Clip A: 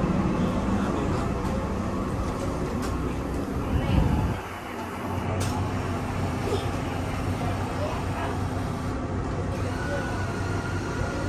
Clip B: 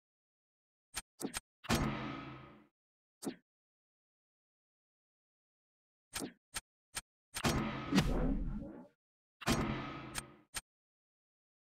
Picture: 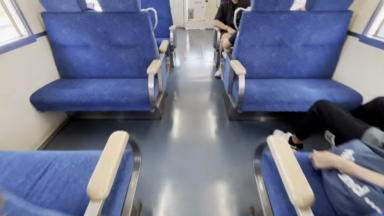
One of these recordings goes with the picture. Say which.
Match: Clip A